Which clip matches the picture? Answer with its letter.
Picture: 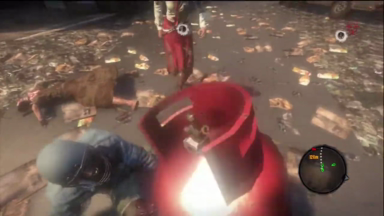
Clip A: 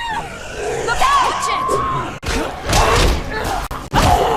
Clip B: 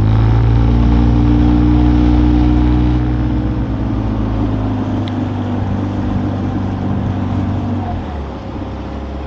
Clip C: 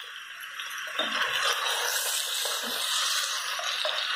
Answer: A